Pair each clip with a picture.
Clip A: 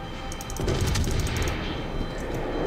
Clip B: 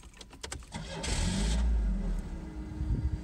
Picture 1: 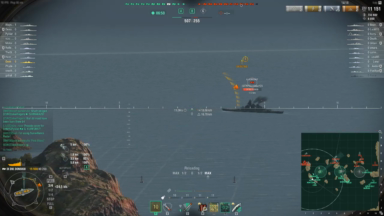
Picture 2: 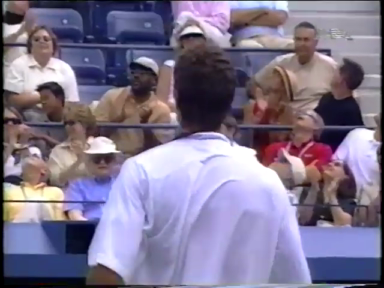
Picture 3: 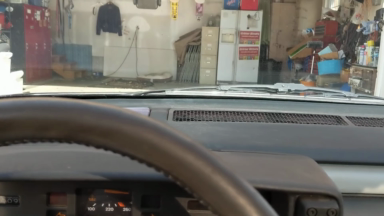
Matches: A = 1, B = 3